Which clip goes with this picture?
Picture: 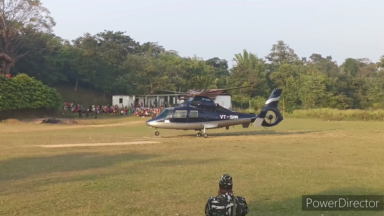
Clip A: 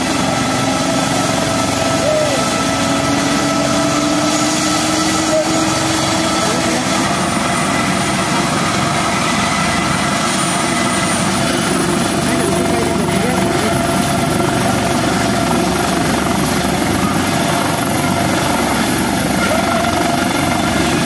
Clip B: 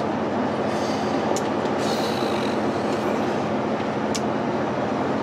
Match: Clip A